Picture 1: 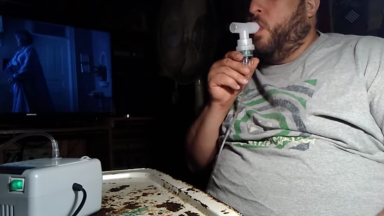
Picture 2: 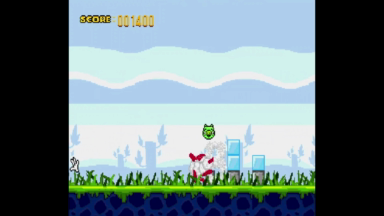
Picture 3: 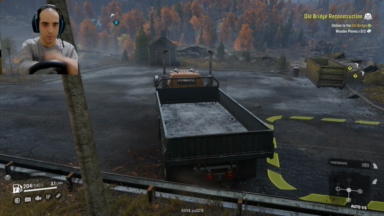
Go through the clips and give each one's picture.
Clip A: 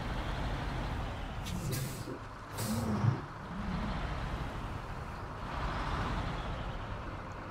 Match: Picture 3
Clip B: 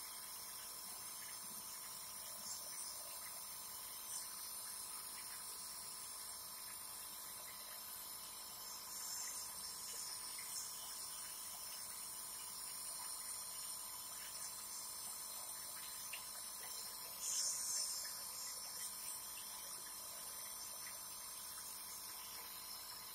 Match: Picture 1